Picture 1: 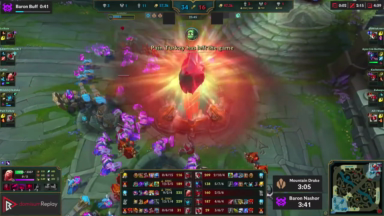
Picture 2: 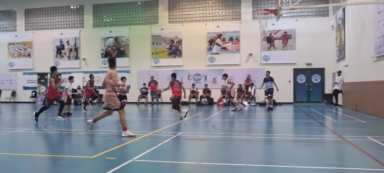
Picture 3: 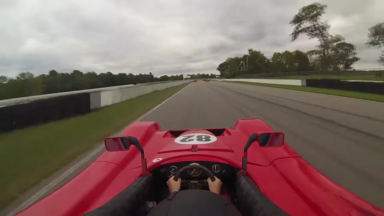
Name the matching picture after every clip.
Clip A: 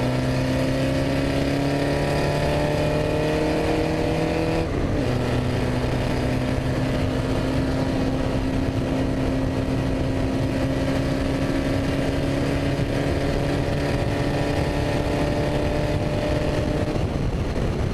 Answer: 3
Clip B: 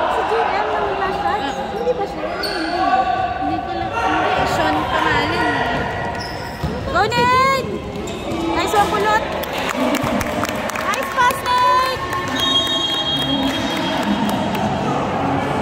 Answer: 2